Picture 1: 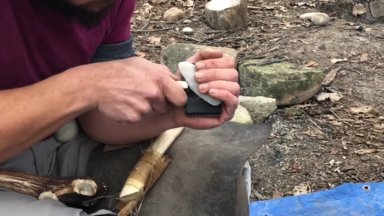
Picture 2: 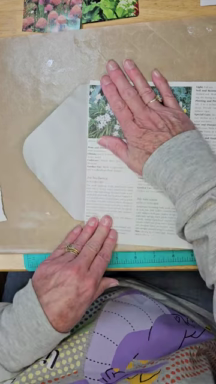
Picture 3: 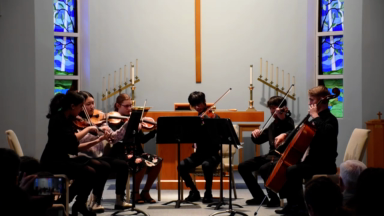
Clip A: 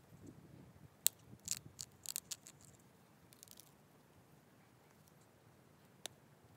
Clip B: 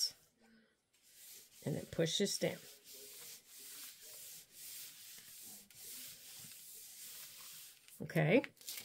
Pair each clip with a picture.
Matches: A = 1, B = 2